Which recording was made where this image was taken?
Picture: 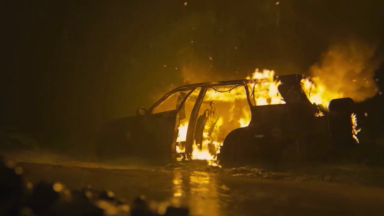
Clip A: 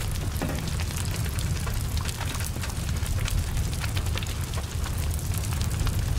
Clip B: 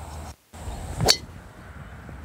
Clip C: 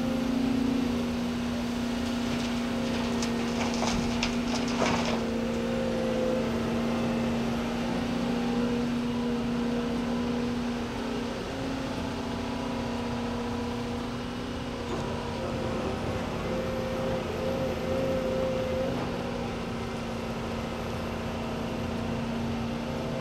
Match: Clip A